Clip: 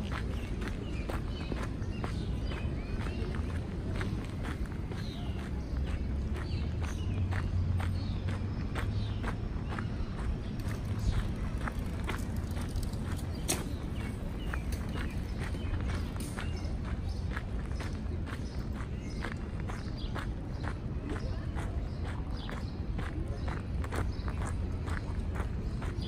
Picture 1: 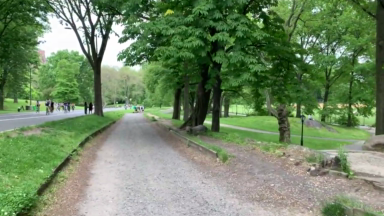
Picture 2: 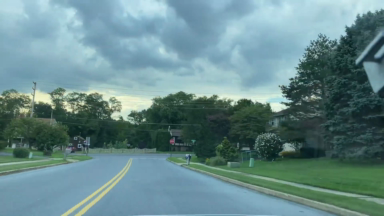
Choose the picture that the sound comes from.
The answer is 1